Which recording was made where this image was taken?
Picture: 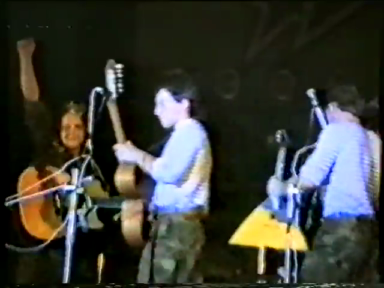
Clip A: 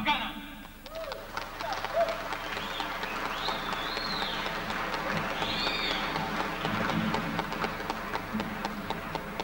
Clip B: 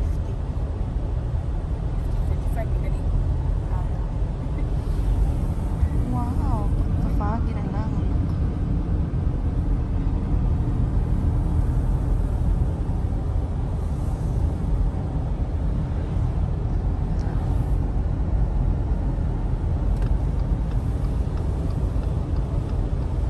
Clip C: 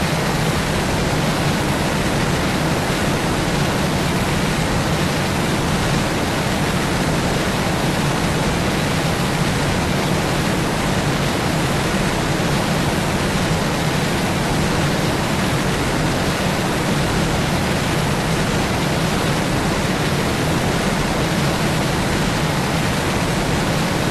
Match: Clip A